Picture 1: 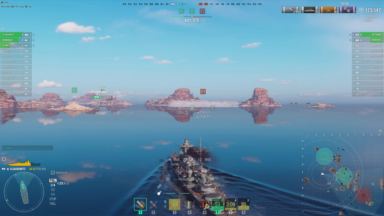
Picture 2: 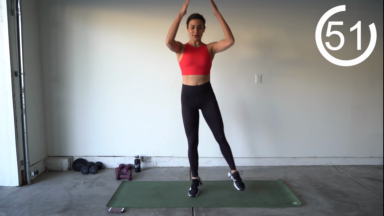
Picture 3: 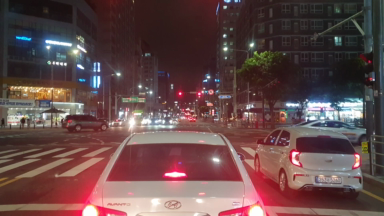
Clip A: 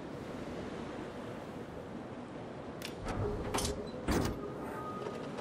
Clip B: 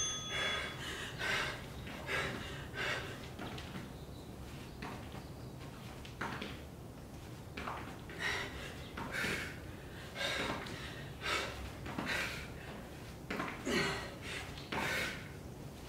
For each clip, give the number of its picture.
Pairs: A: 1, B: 2